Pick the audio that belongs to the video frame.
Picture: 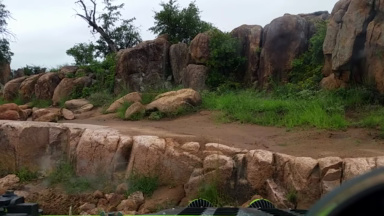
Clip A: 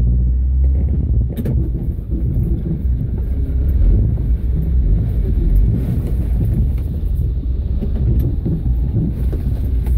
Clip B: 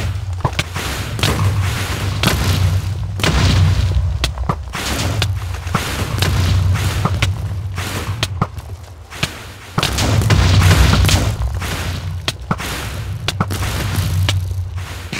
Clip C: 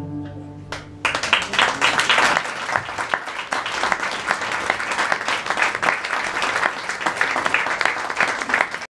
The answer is A